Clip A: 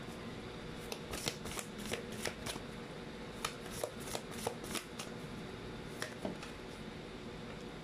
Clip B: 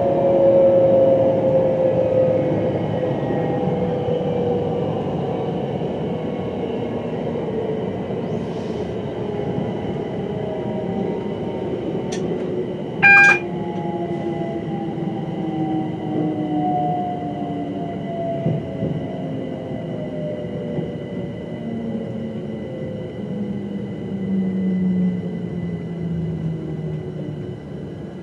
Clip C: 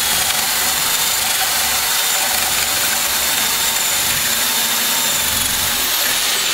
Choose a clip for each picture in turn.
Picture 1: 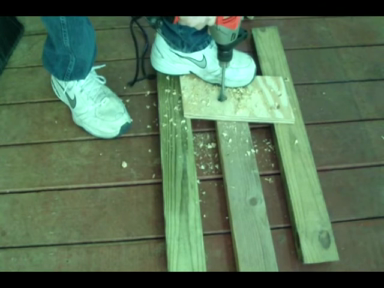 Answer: C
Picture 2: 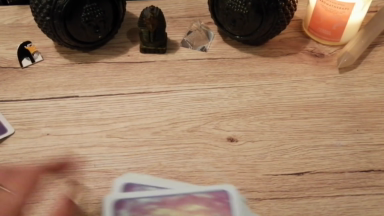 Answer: A